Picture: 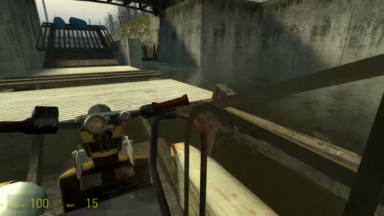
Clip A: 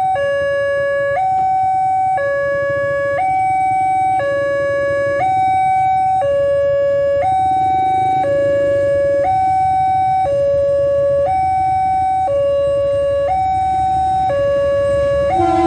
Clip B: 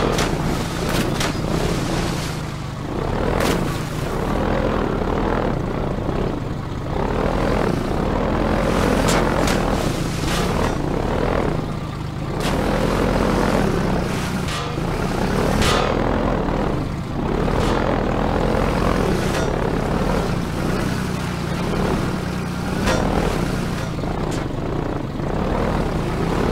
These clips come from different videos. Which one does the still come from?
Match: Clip B